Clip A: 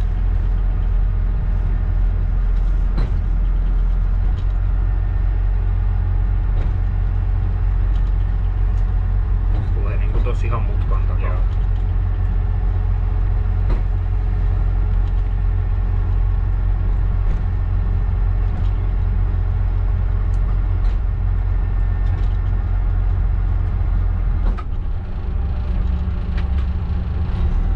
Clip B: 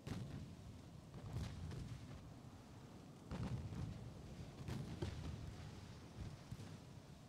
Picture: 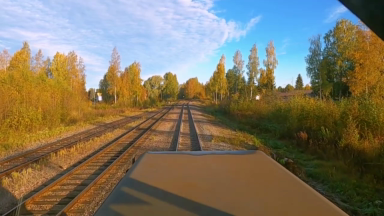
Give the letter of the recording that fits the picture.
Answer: A